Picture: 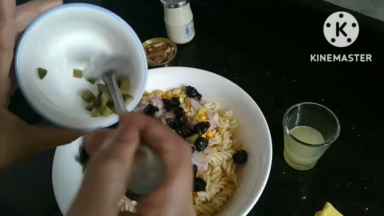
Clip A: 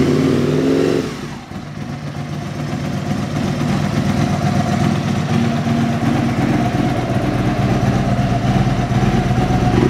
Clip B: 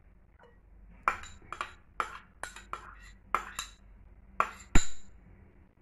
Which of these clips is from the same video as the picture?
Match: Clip B